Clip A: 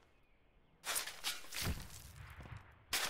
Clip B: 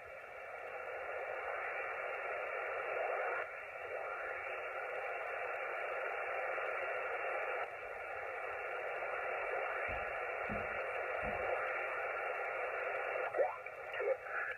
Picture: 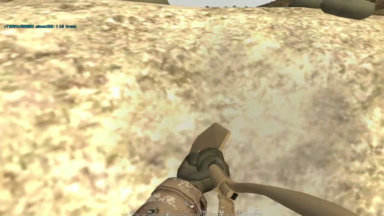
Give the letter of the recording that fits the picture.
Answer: A